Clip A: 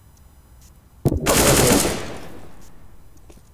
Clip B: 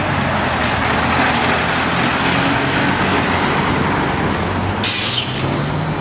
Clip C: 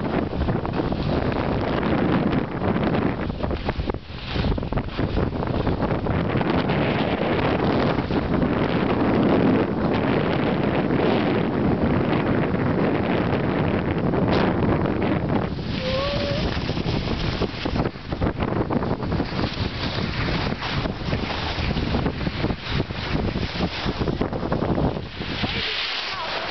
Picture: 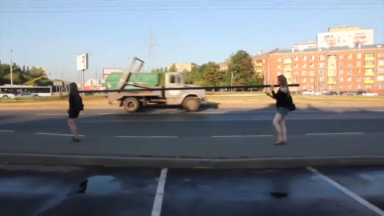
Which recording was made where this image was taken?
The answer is B